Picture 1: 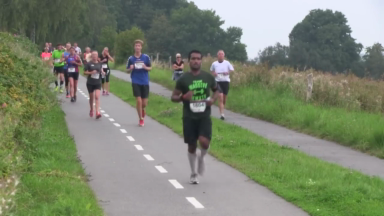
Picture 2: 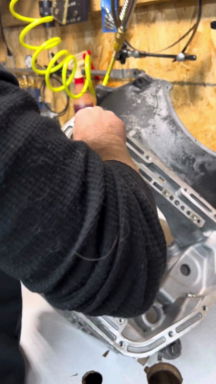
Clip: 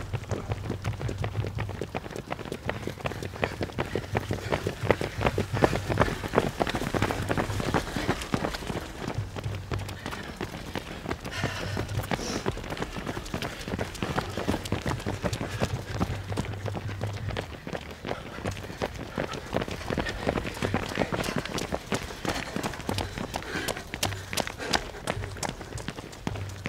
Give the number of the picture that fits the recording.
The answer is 1